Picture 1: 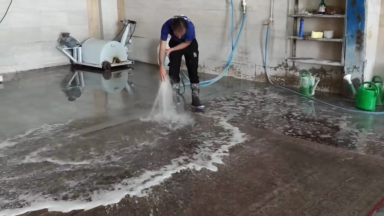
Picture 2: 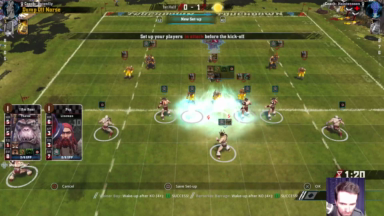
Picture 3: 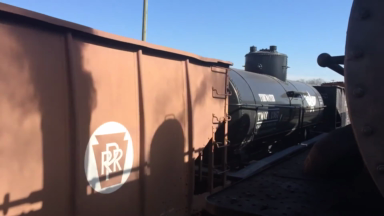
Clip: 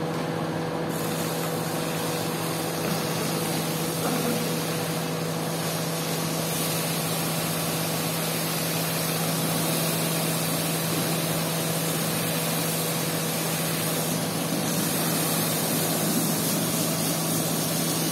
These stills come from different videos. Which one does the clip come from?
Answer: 1